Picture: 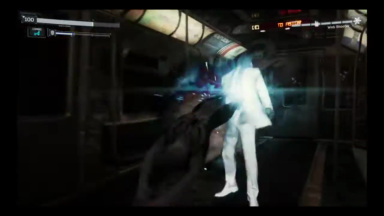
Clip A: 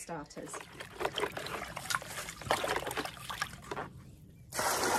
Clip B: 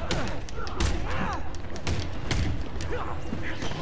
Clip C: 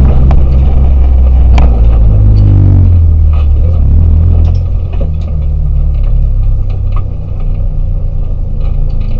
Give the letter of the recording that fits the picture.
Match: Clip B